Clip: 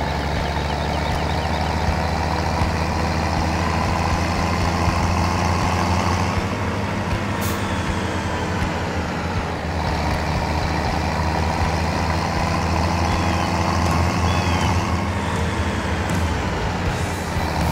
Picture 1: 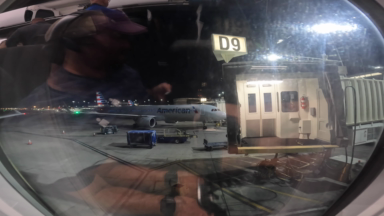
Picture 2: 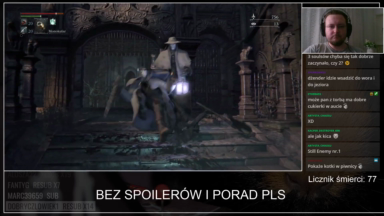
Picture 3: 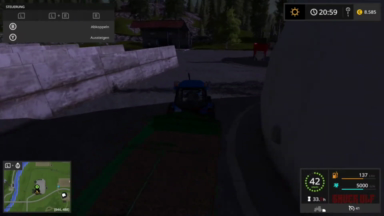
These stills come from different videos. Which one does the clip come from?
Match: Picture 3